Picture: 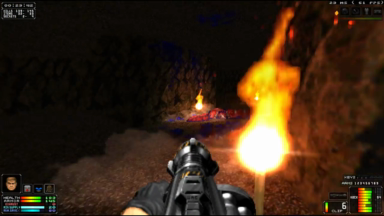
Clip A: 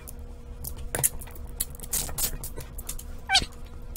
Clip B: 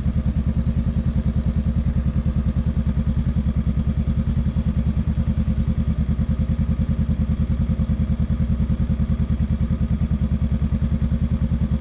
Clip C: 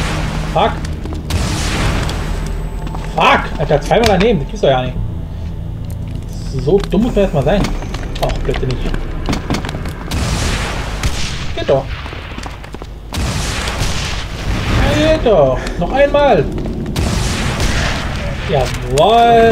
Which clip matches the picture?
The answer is C